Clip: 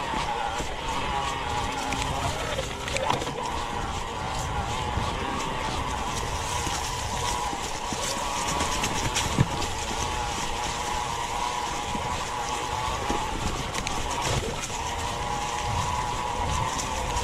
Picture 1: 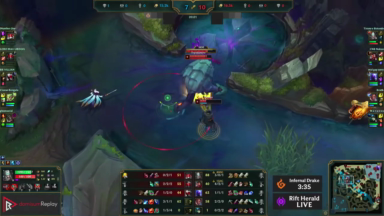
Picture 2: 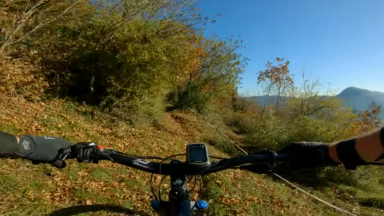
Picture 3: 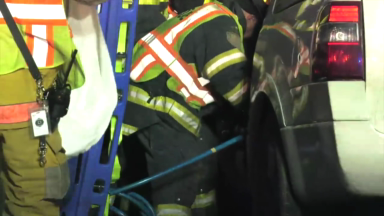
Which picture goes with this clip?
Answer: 2